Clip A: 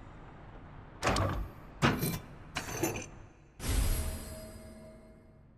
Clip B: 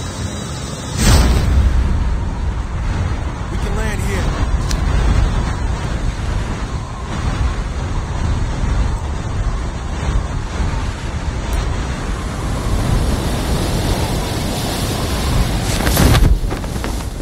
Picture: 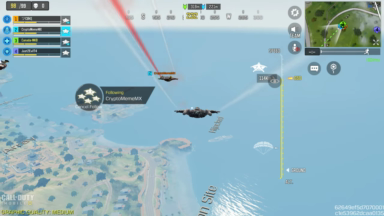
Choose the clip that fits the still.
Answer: B